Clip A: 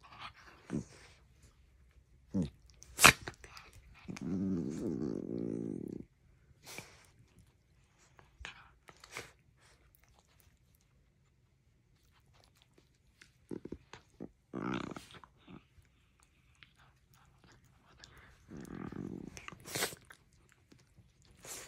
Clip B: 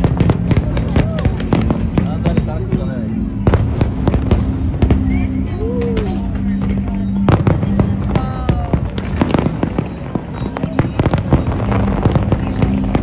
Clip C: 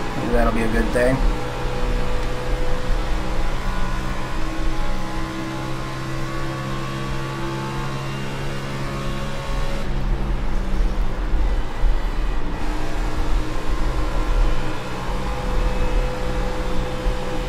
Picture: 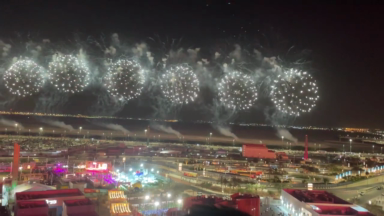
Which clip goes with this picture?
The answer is B